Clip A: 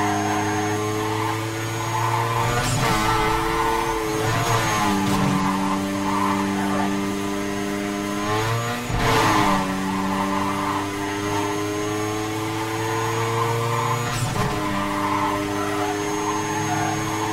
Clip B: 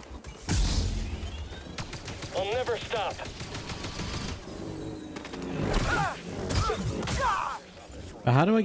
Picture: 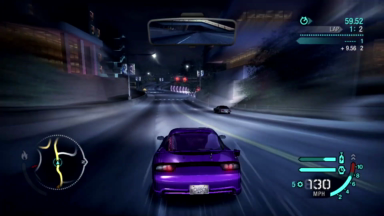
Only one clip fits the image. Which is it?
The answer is A